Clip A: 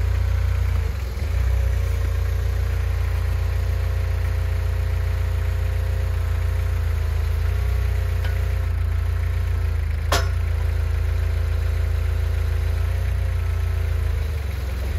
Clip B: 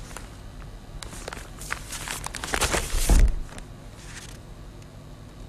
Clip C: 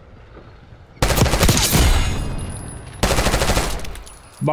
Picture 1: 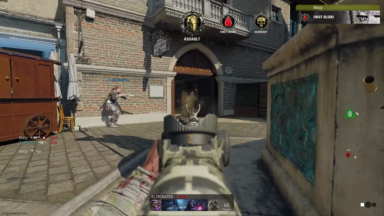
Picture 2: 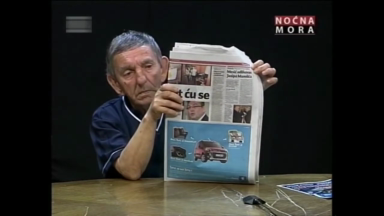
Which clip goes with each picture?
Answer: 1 C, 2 B